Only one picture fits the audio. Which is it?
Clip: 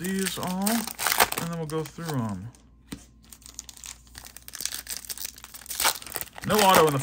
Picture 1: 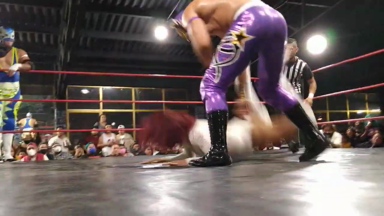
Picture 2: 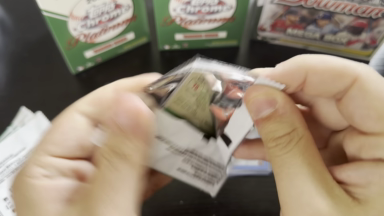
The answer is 2